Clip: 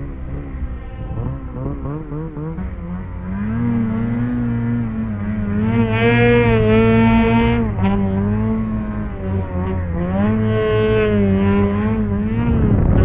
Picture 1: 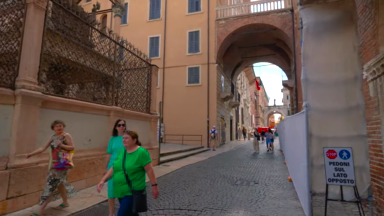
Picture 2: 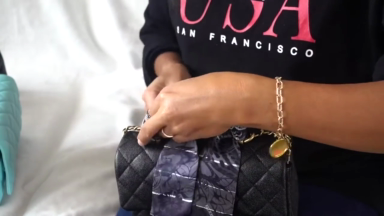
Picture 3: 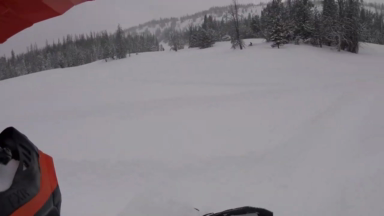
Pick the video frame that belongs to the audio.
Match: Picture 3